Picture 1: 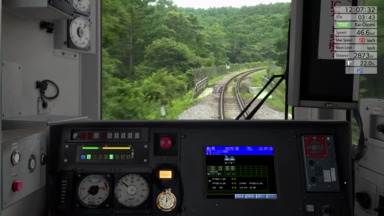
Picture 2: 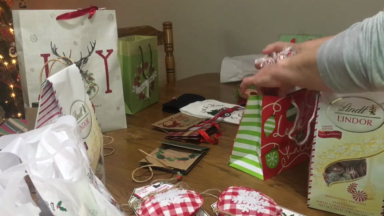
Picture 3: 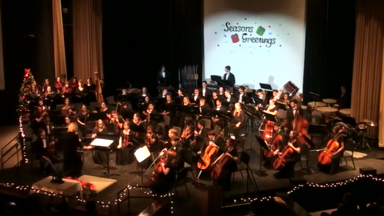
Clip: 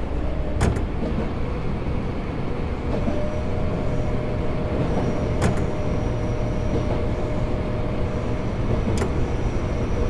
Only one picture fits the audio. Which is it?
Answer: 1